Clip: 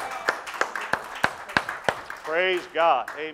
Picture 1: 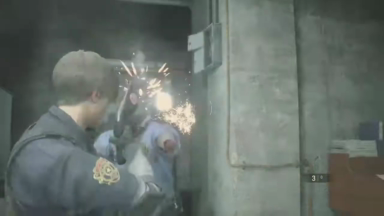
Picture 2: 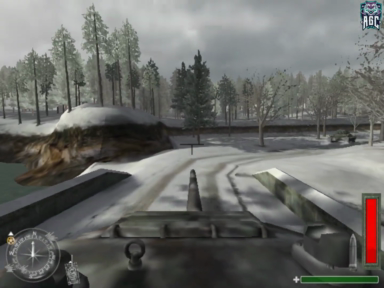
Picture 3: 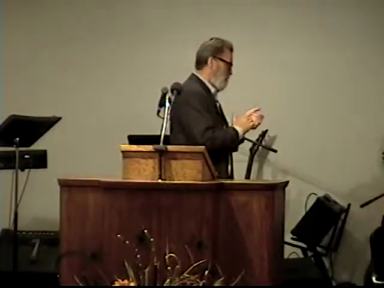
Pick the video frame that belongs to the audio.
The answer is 3